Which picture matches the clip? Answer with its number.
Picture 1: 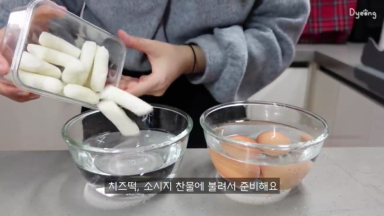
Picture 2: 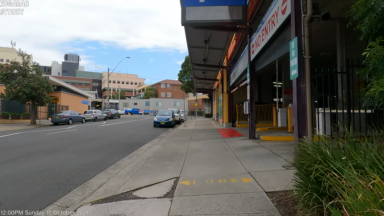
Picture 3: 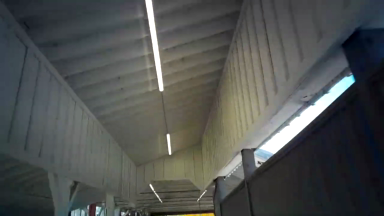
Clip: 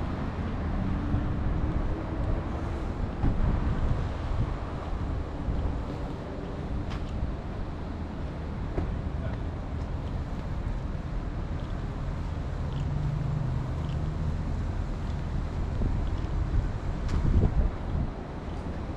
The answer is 2